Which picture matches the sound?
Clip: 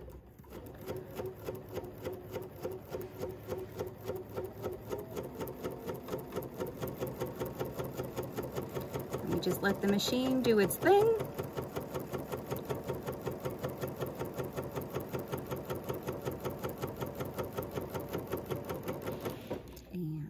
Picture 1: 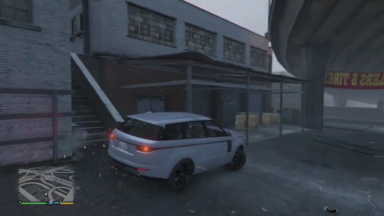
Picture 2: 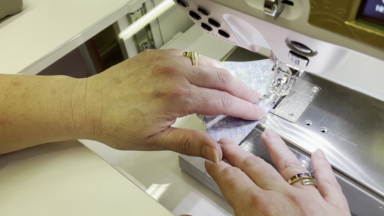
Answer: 2